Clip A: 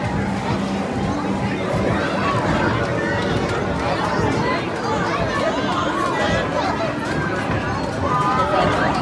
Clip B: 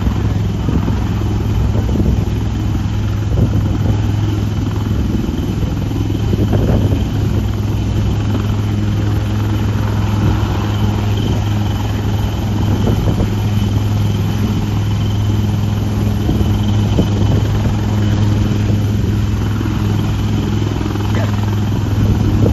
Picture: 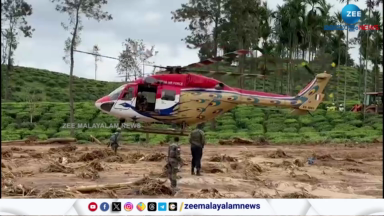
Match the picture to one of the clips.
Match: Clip B